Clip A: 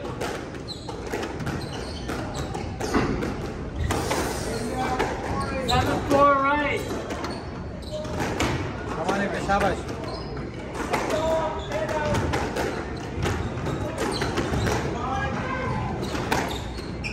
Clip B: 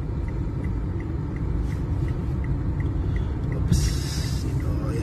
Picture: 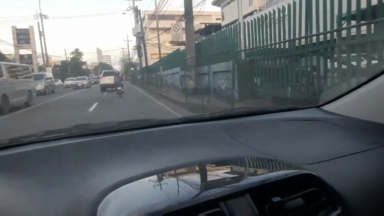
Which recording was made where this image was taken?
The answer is B